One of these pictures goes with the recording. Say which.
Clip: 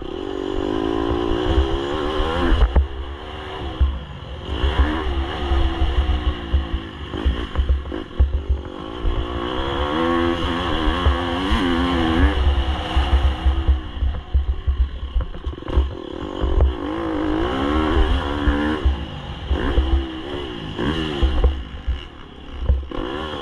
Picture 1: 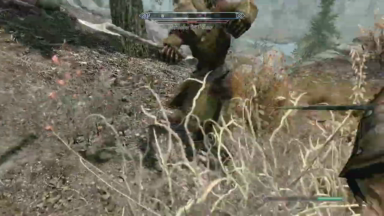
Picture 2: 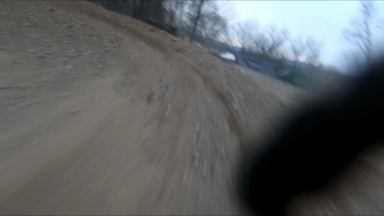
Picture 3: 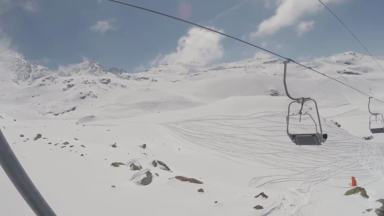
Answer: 2